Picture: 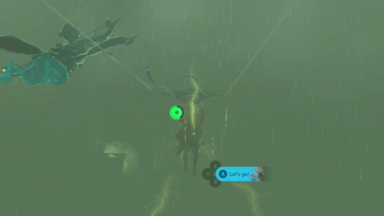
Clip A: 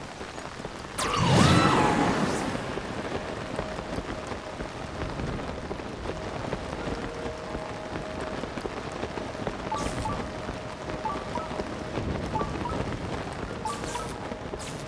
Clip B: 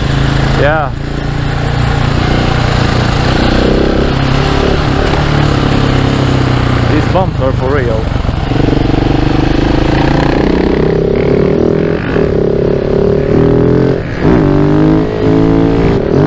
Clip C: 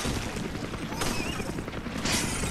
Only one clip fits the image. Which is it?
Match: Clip A